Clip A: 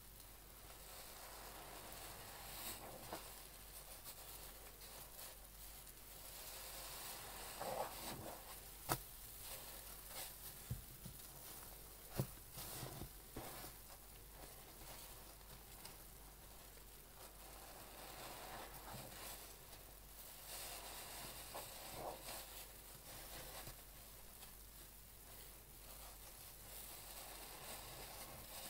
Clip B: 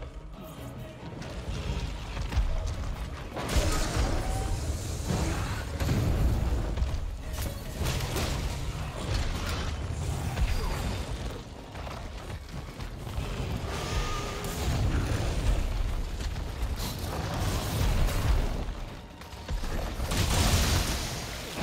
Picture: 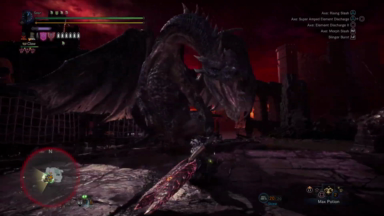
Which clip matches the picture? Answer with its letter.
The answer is B